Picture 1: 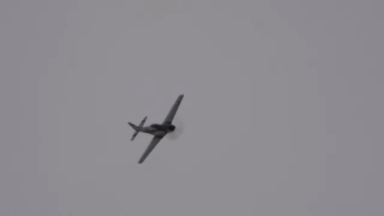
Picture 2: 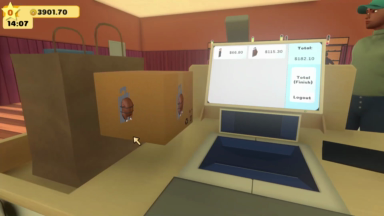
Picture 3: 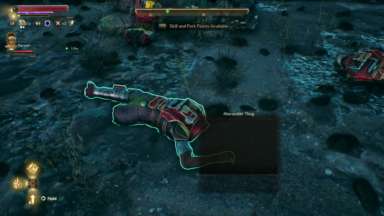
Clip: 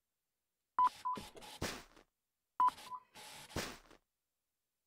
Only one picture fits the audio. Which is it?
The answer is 2